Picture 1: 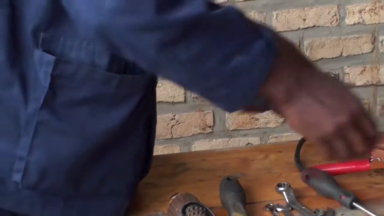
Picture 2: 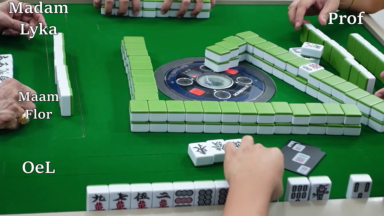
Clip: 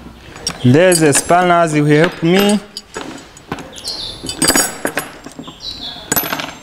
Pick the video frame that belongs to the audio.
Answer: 1